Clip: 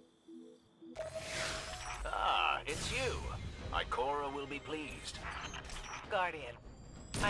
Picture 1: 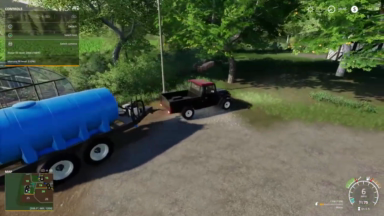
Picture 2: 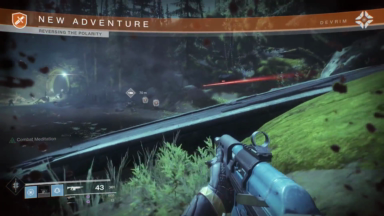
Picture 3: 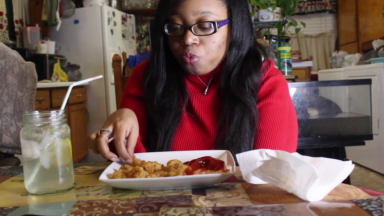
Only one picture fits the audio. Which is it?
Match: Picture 2